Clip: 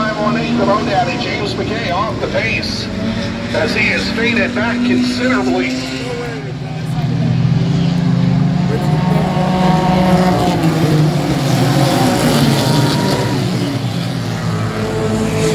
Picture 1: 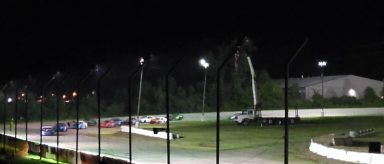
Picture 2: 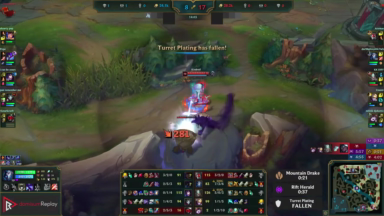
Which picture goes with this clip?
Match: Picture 1